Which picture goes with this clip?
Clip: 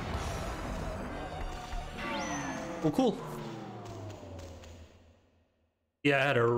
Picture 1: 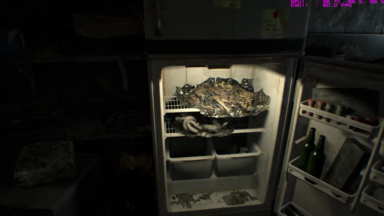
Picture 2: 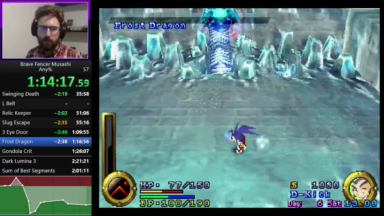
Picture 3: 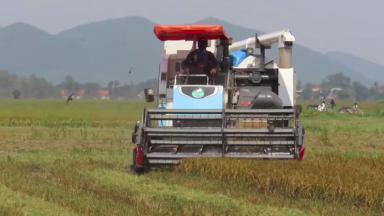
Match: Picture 2